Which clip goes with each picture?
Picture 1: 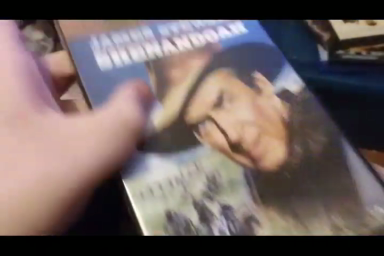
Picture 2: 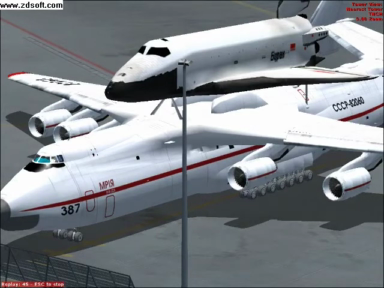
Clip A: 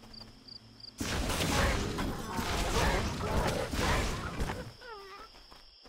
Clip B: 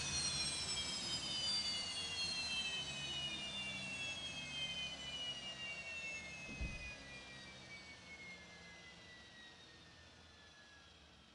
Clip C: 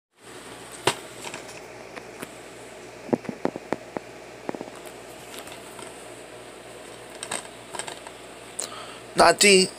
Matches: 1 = C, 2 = B